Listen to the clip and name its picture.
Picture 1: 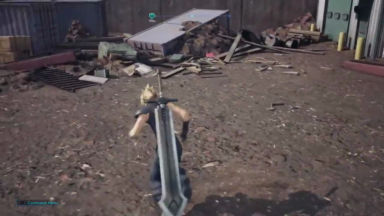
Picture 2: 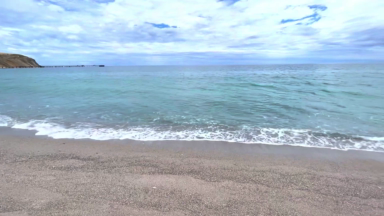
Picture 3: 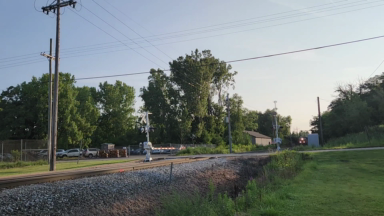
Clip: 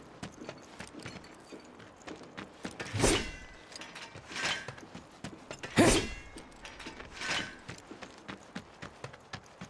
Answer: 1